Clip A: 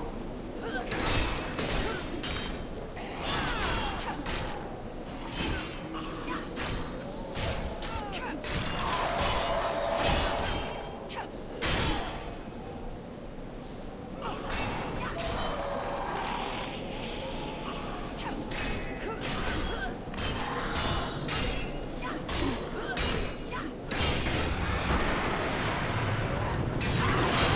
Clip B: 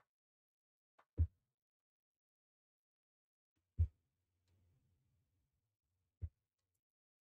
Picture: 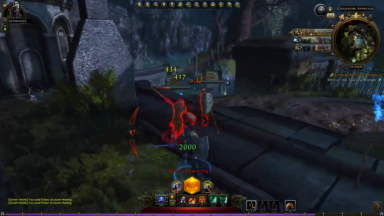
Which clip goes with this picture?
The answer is A